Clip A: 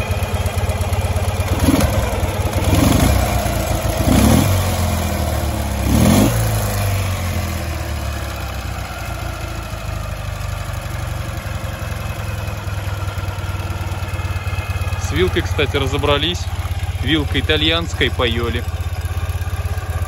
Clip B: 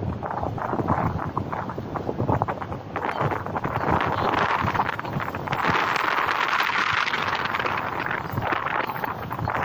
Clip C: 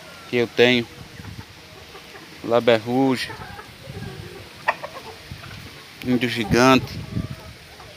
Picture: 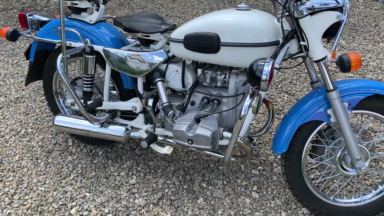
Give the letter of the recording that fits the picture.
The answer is A